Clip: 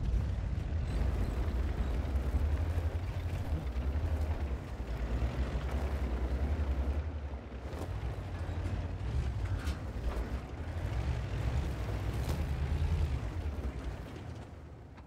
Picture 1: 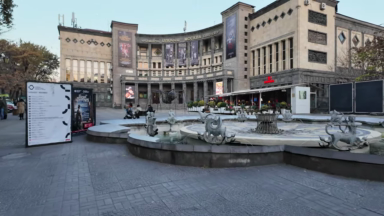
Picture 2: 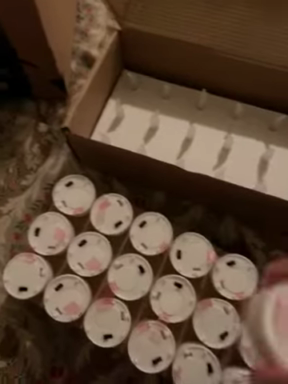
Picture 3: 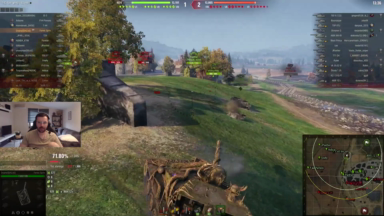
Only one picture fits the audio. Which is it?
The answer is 3